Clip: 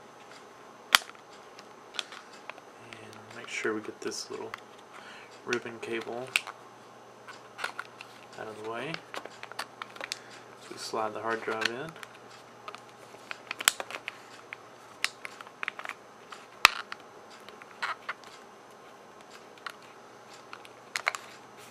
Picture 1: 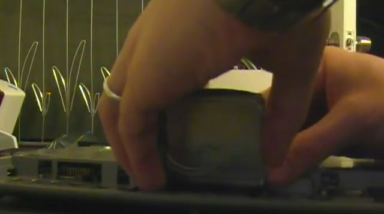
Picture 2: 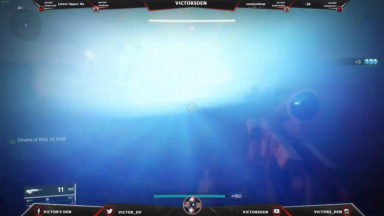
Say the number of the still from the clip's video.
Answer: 1